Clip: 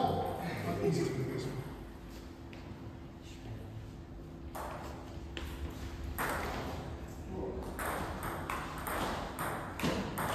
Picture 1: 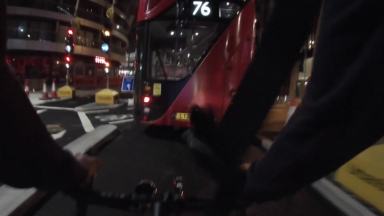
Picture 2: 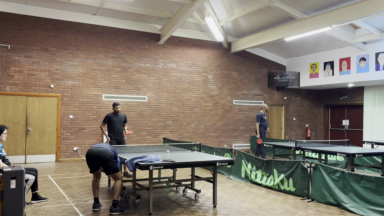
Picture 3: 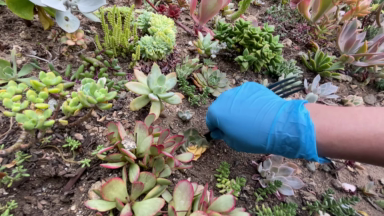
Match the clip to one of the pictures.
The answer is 2